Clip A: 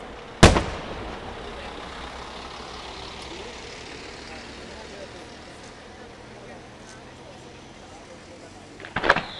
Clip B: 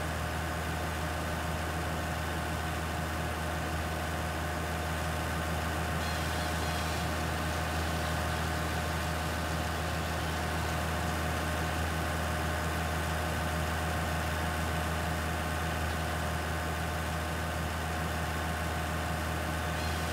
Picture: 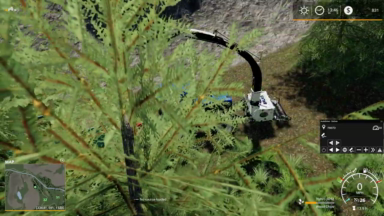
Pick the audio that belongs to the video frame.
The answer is B